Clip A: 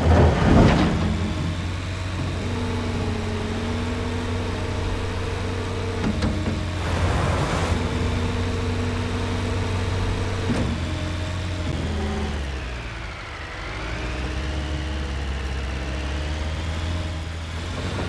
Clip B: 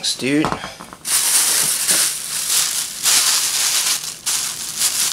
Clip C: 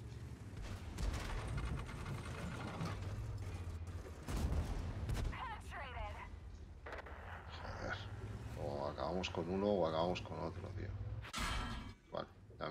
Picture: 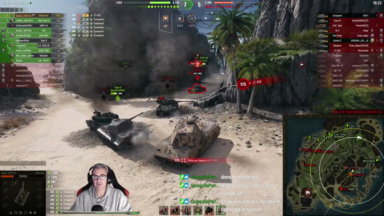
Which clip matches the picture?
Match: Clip C